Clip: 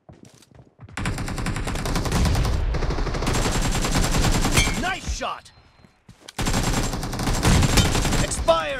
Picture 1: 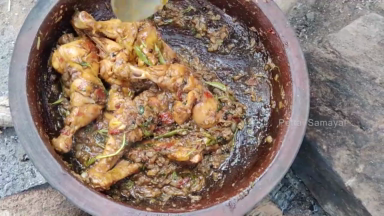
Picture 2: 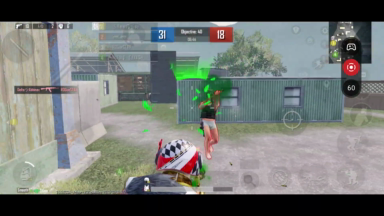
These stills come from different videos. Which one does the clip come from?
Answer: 2